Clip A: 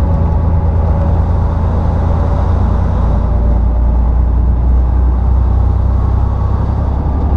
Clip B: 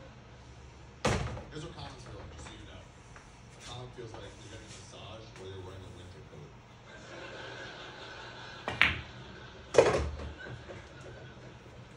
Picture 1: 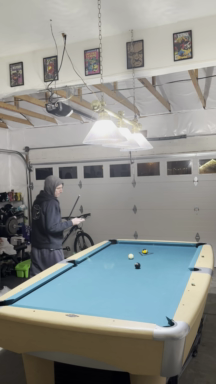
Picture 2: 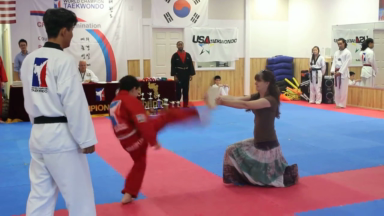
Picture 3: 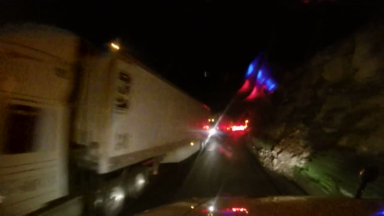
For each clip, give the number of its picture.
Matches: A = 3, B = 1